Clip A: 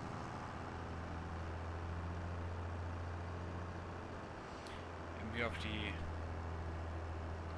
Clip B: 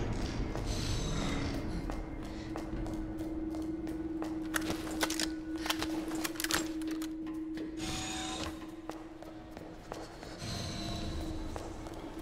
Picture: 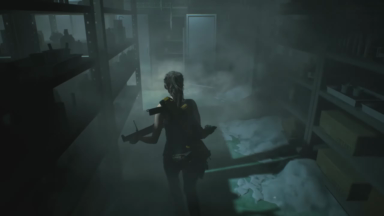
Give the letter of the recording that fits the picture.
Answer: B